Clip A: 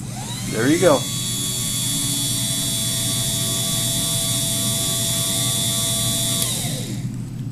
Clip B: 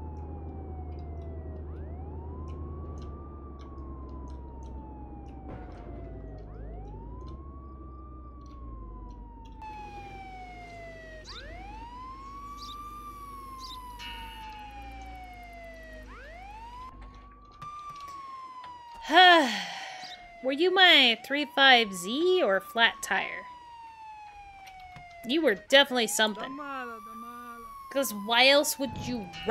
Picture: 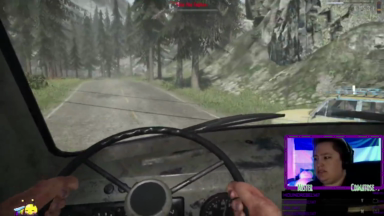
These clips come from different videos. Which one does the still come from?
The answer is B